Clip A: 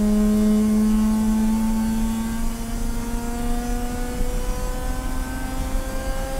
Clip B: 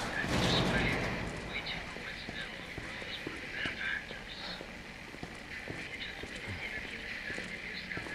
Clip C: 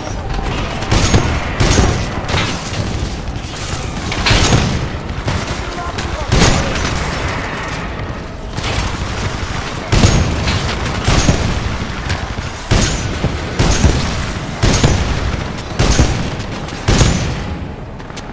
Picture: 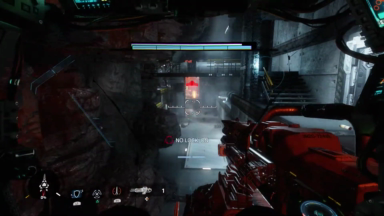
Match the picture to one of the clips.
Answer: C